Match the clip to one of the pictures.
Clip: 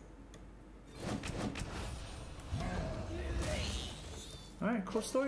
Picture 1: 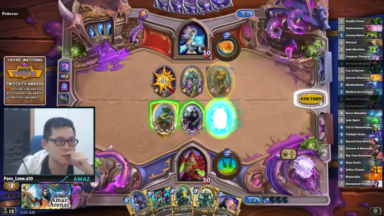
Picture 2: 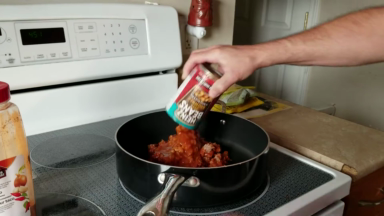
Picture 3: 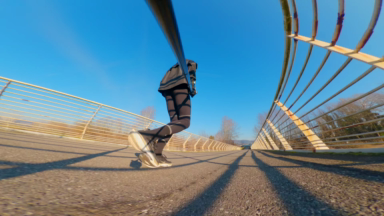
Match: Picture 1